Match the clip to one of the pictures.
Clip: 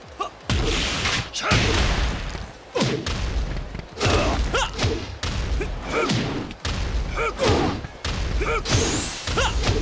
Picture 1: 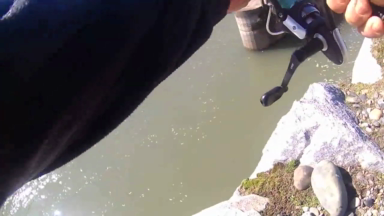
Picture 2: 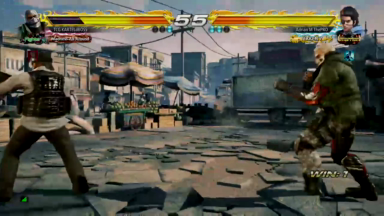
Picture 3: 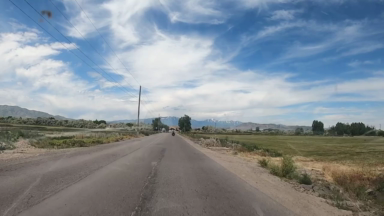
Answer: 2